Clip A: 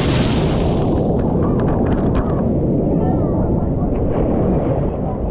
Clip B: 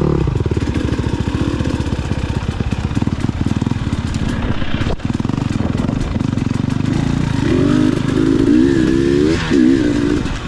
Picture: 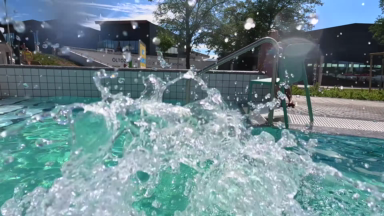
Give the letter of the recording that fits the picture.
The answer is A